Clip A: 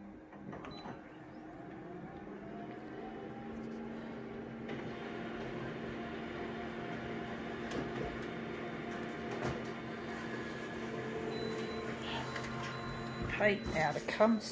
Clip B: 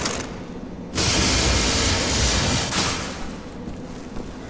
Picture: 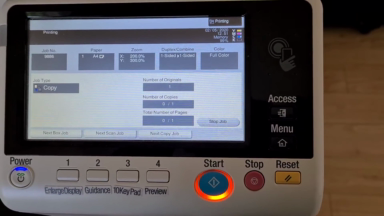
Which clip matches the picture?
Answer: A